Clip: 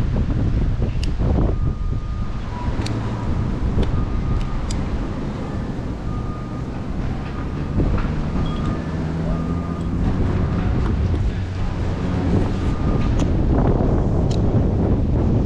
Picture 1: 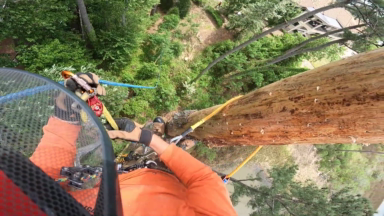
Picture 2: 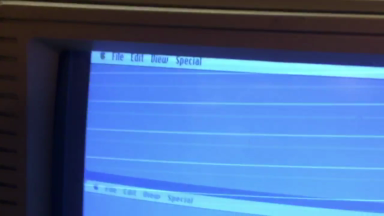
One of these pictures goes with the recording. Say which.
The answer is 1